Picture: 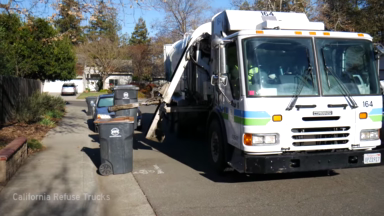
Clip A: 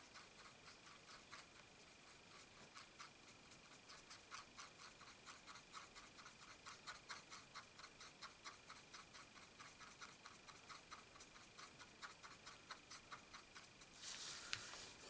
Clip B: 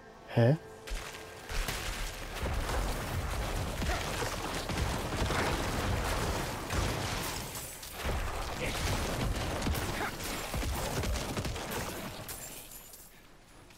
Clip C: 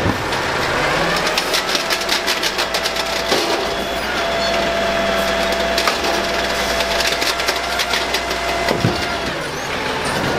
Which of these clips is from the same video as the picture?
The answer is C